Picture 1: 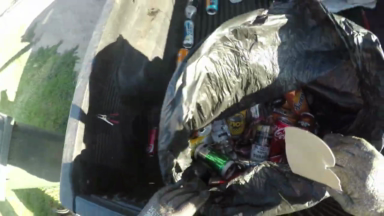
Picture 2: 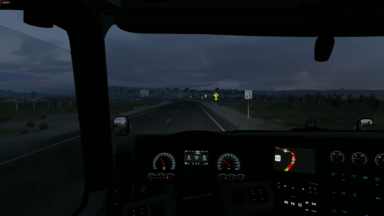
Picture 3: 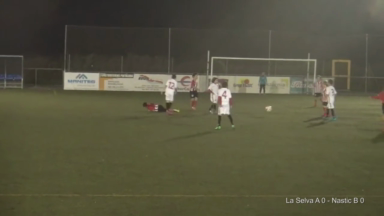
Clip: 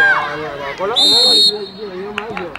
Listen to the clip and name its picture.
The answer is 3